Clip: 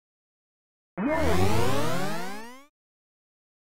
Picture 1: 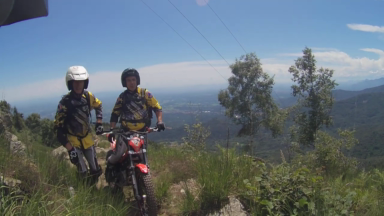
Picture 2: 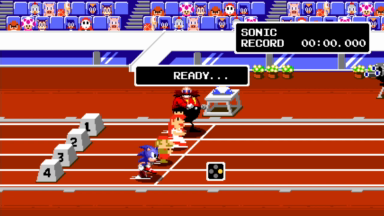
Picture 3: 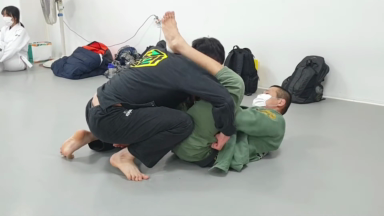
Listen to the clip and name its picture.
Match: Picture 2